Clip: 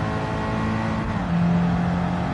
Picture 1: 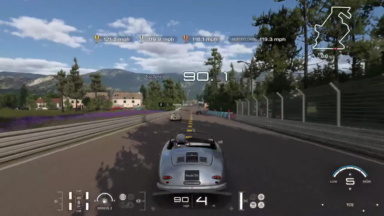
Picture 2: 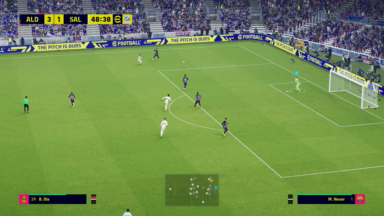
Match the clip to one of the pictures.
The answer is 1